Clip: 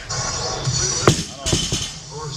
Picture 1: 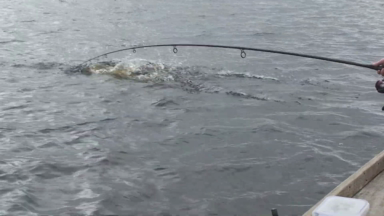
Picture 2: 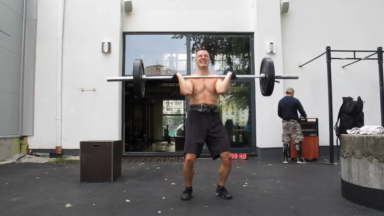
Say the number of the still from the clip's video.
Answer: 2